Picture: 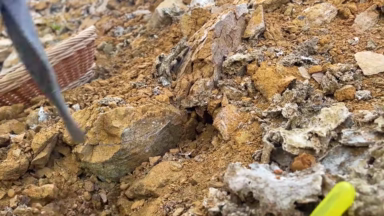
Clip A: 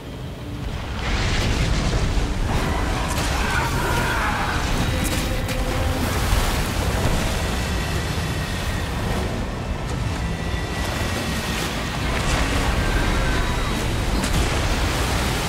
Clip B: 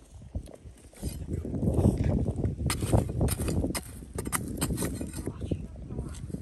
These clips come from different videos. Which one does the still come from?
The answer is B